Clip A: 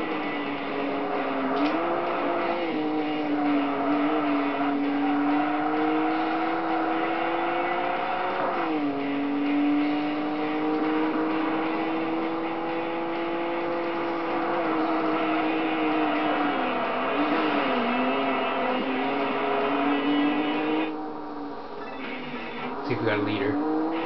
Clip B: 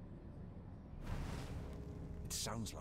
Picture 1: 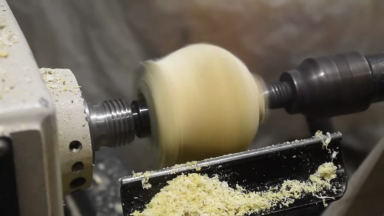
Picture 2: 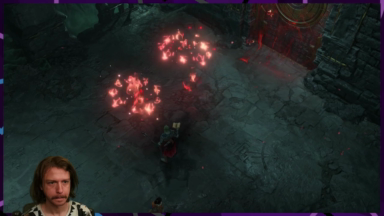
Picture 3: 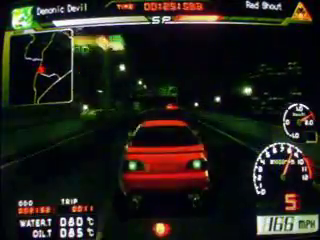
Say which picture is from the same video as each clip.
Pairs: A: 3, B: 2